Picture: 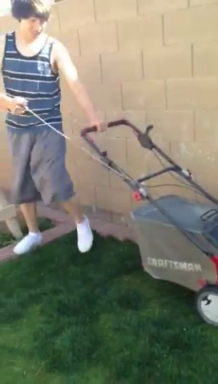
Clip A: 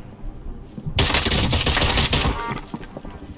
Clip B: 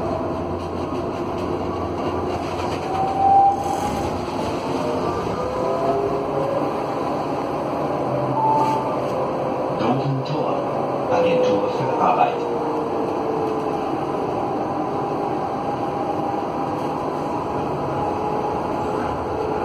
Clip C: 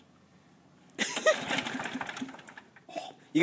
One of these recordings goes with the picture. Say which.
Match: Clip C